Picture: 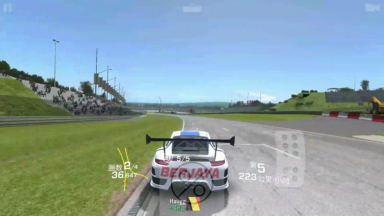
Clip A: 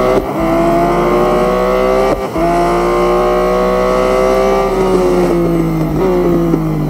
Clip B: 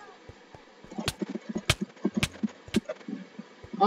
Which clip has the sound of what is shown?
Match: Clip A